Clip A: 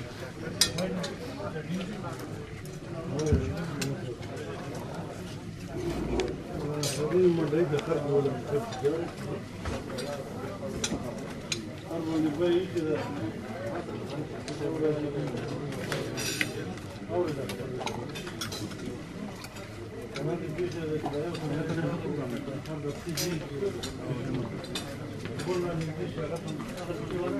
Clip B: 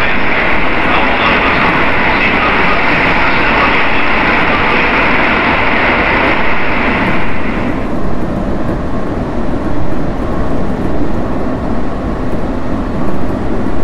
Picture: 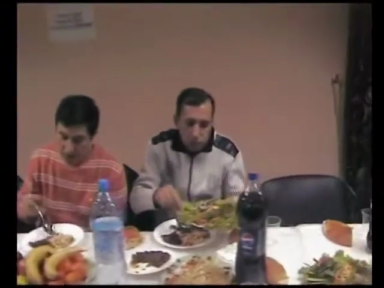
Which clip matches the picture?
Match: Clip A